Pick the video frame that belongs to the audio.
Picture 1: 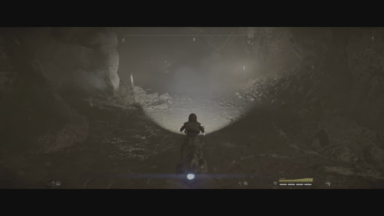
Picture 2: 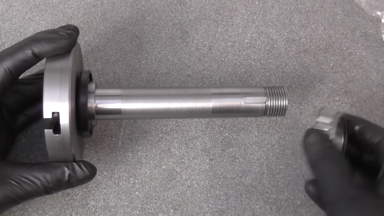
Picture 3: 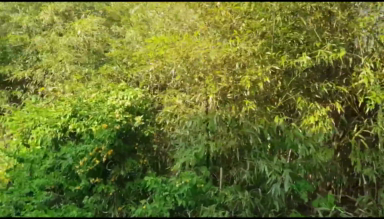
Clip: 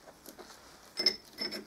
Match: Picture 2